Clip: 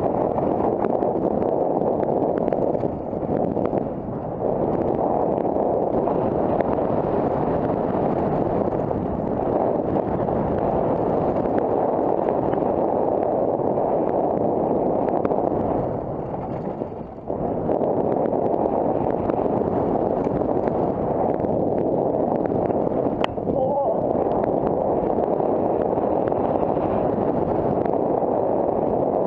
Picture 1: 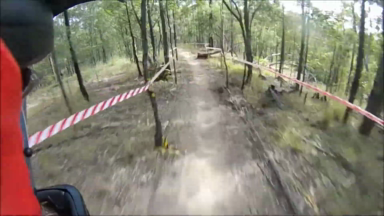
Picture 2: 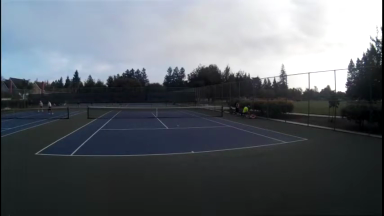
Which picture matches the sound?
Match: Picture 1